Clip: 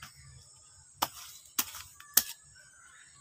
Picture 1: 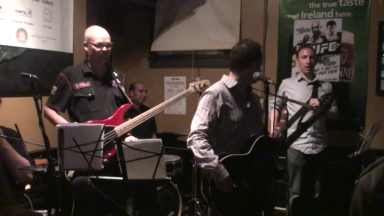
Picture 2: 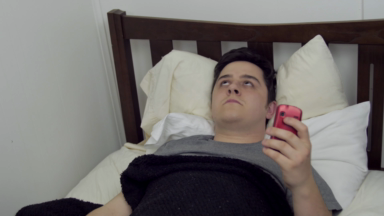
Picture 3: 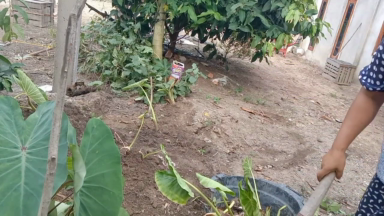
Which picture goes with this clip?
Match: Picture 3